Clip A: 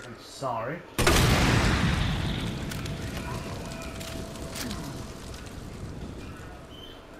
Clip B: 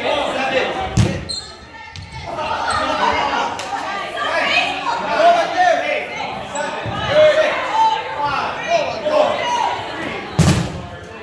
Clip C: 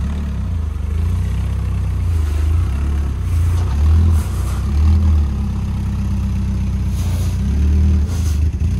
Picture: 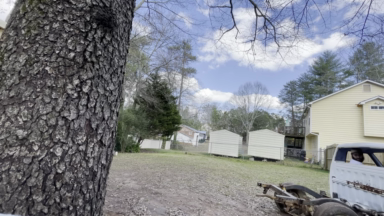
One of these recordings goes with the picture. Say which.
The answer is C